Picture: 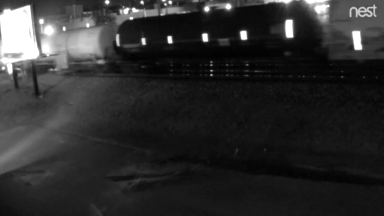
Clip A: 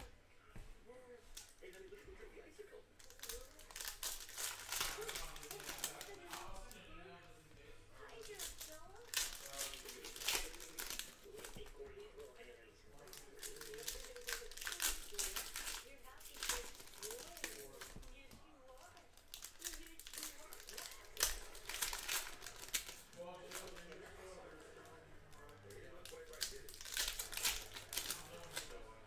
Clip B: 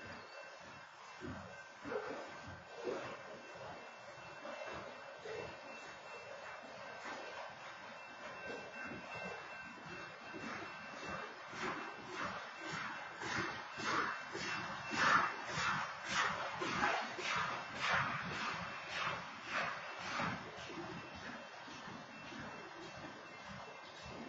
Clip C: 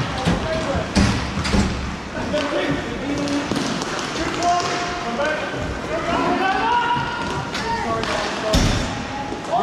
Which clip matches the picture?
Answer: B